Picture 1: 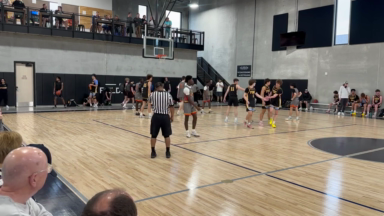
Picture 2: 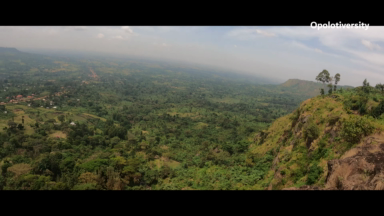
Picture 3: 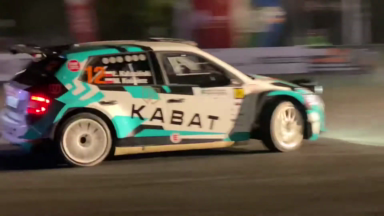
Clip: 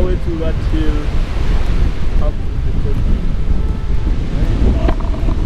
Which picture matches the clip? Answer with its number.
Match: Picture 2